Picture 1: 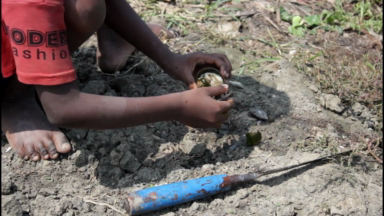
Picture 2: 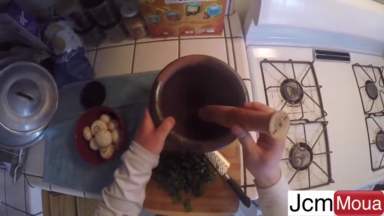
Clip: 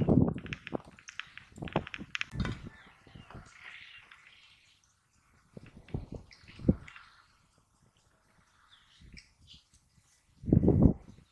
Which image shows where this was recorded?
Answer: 1